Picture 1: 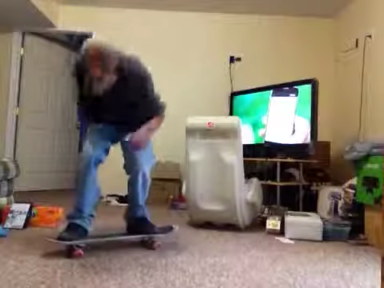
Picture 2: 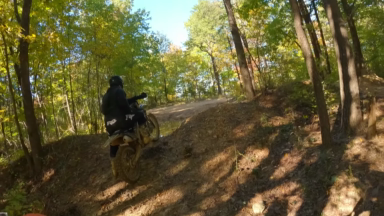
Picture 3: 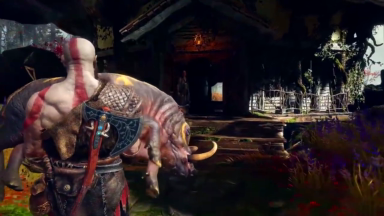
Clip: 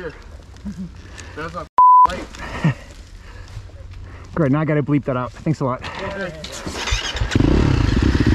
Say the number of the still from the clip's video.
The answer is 2